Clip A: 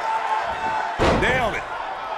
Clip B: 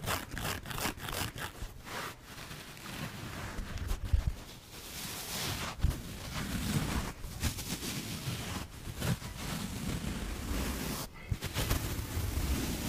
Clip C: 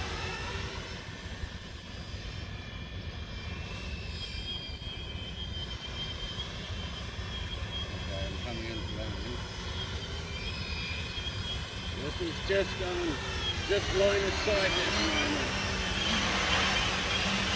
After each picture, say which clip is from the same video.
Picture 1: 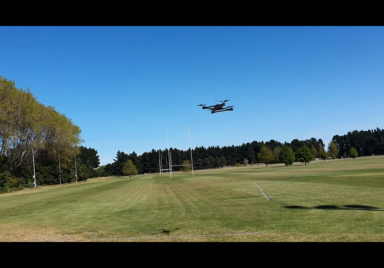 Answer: C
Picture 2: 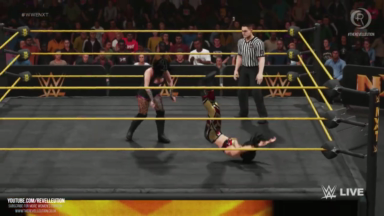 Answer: A